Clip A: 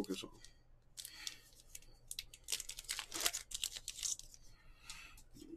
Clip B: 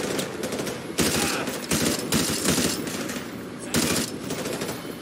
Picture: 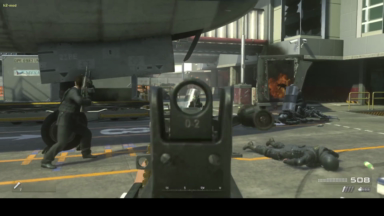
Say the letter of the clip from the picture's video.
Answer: B